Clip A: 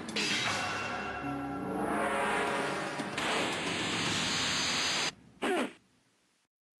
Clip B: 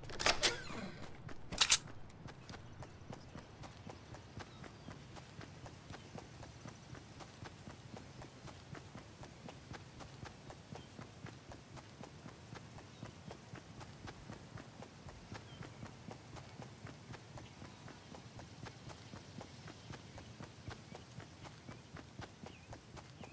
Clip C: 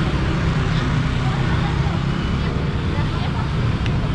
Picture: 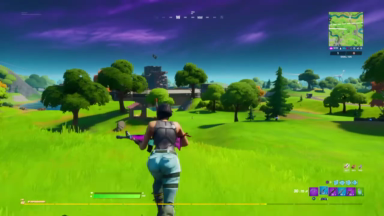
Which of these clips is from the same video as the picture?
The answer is B